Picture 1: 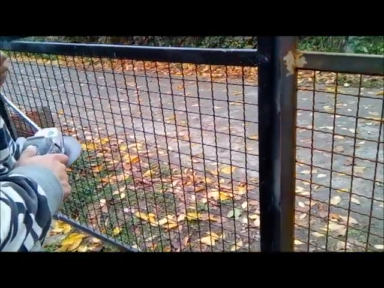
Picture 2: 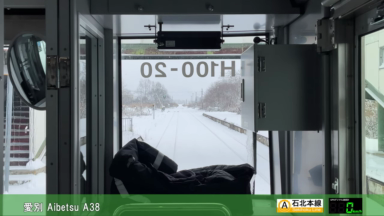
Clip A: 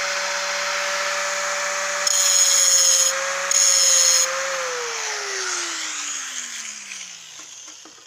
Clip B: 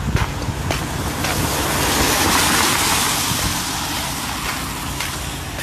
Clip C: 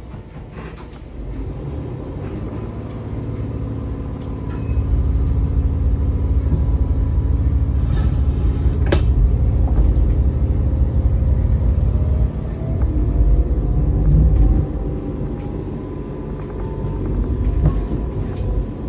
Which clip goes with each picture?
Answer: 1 A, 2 C